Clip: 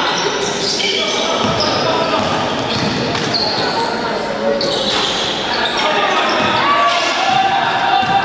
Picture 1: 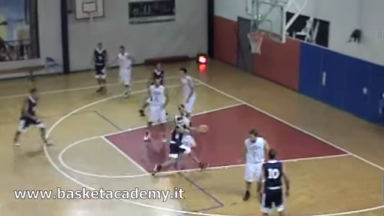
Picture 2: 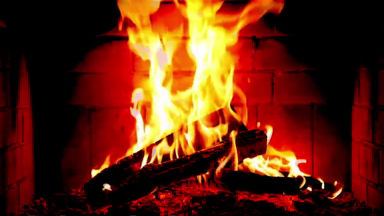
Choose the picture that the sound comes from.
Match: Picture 1